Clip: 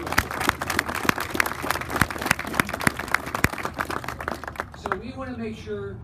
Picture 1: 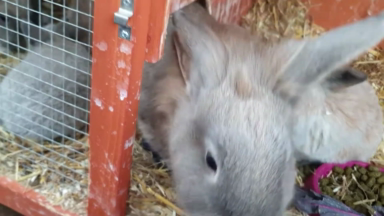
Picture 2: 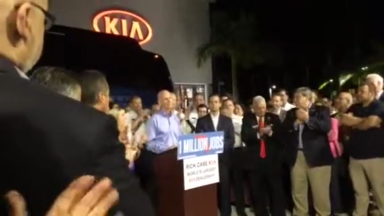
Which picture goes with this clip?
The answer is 2